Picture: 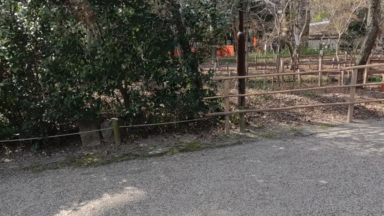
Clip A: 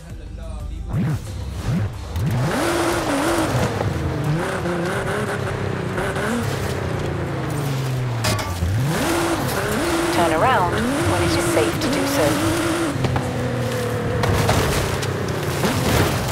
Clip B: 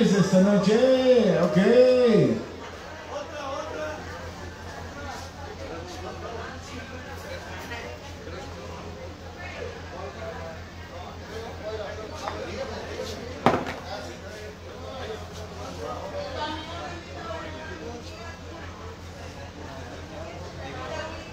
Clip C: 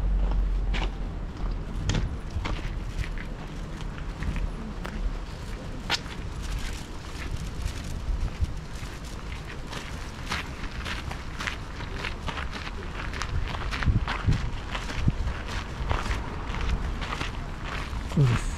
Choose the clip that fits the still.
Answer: C